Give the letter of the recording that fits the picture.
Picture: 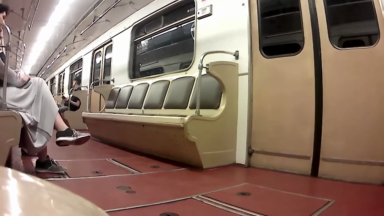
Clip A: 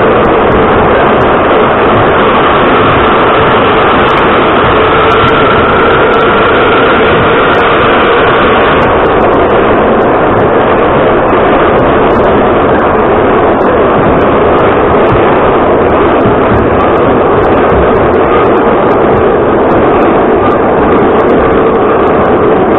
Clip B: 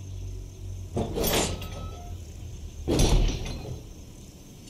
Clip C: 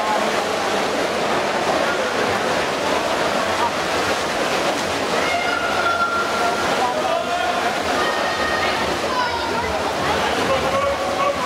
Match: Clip A